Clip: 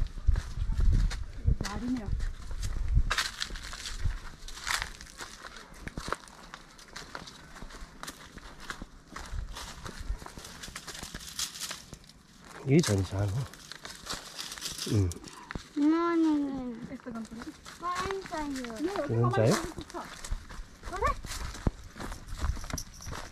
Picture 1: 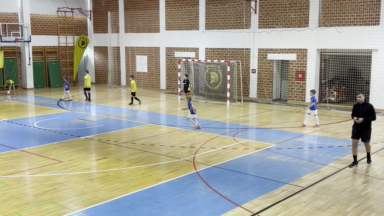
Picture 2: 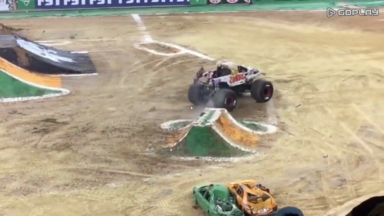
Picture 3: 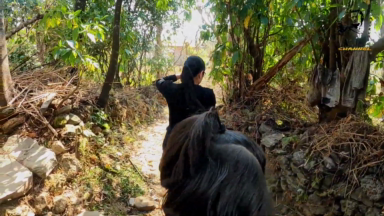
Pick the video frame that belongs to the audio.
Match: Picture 3